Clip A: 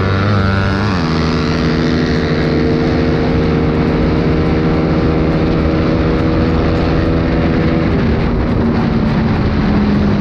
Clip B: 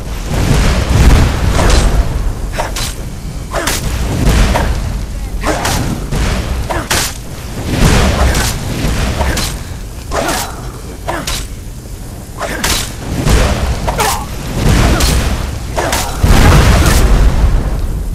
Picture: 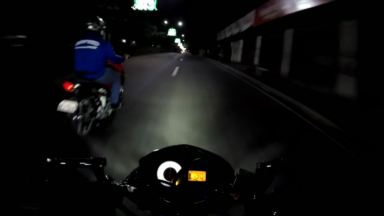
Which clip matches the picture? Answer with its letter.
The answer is A